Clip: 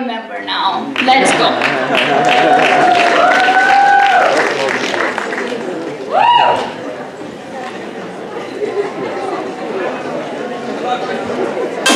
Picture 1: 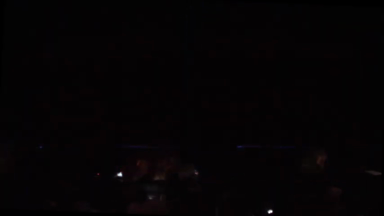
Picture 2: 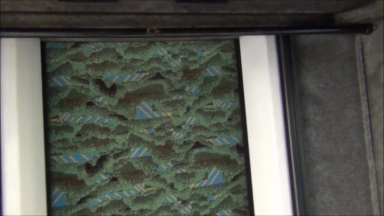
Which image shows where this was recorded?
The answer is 1